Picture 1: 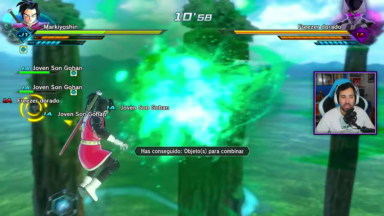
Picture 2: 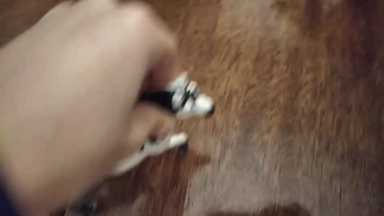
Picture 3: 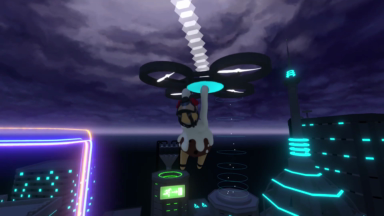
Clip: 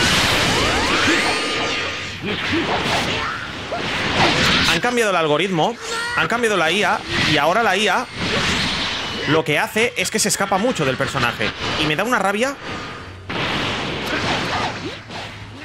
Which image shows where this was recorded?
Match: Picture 1